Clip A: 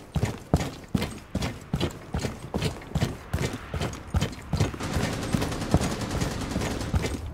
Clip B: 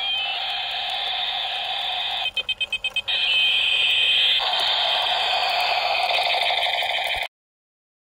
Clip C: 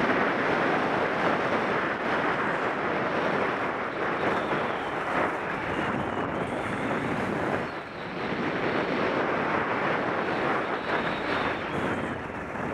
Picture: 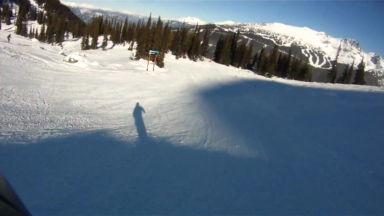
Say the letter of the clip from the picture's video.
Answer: C